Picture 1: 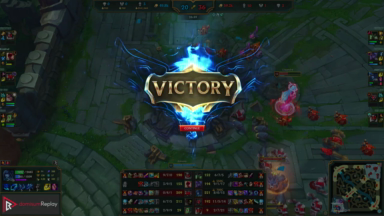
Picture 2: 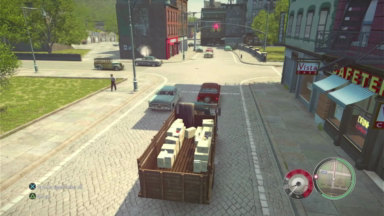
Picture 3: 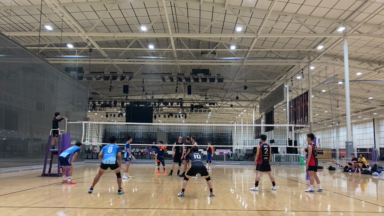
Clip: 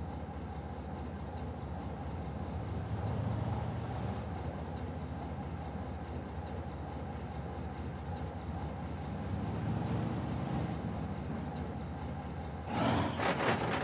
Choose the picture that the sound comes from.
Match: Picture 2